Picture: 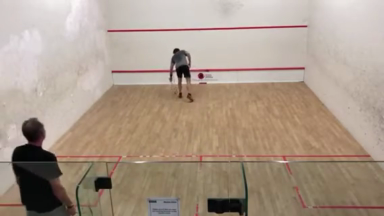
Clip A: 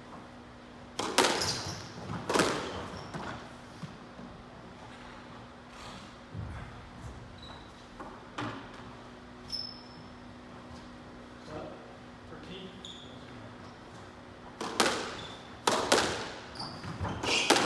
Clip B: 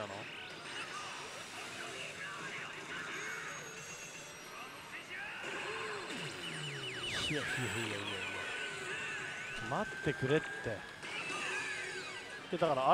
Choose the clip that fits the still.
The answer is A